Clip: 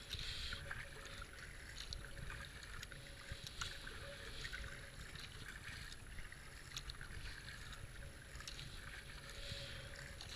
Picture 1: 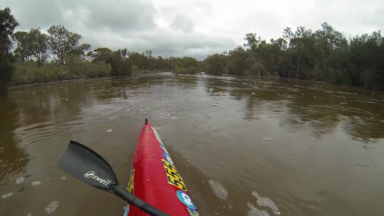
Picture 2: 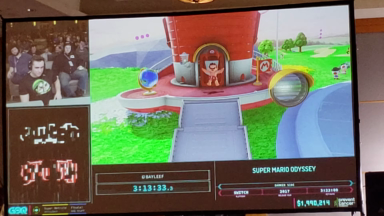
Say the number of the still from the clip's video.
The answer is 1